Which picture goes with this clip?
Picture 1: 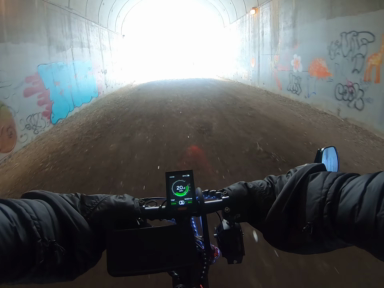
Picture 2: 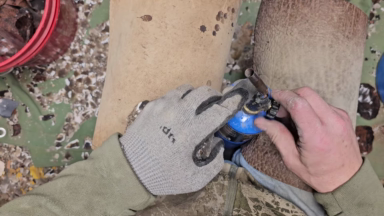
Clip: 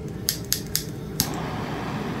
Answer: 2